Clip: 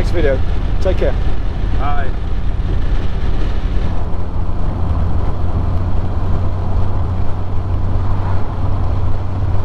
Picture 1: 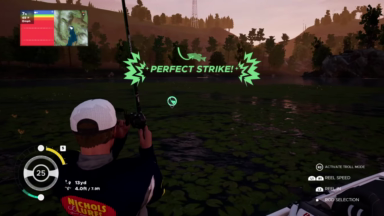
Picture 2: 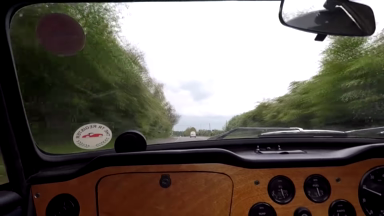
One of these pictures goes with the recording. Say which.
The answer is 2